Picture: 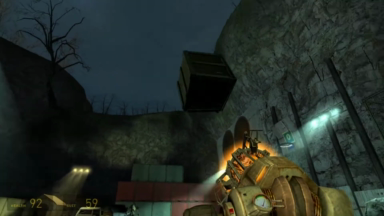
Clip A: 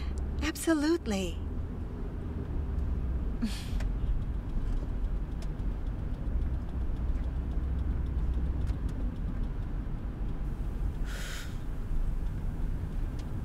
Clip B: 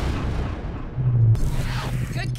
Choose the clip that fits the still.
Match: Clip B